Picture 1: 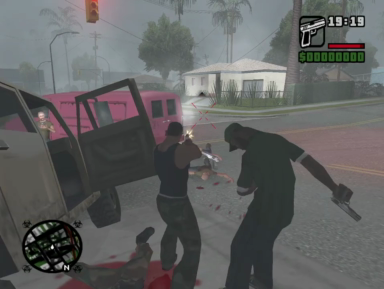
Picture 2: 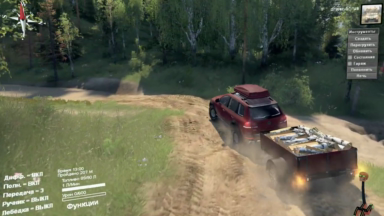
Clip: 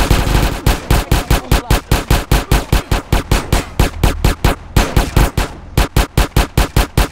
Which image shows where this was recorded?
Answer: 1